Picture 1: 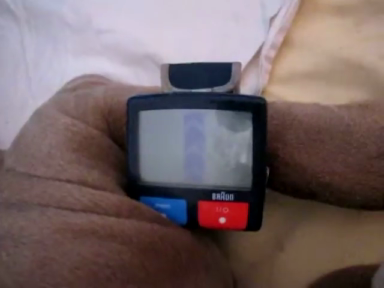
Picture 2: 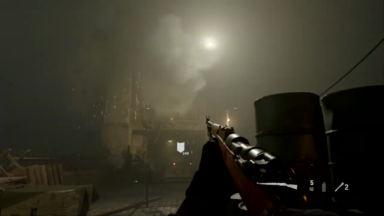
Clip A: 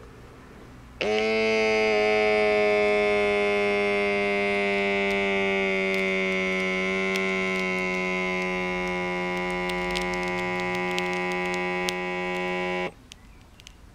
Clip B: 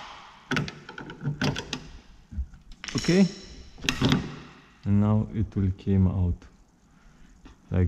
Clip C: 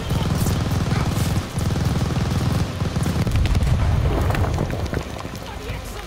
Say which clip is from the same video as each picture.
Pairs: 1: A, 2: C